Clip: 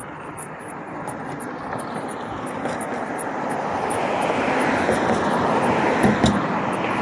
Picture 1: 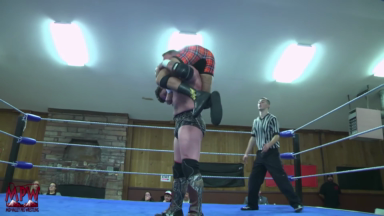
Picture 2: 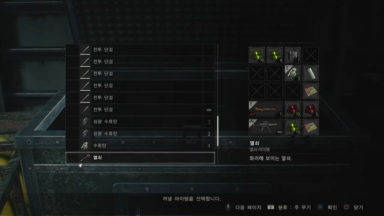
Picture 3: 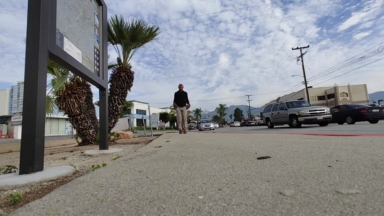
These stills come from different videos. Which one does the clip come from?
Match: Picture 3